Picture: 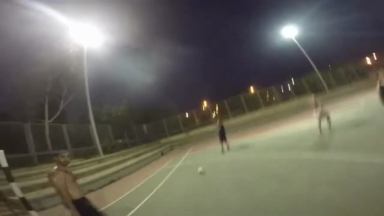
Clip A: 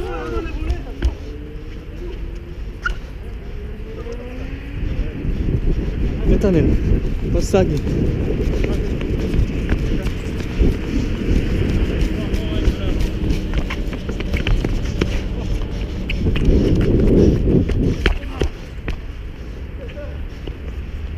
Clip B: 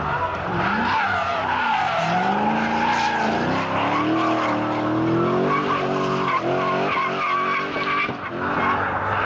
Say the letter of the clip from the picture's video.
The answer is A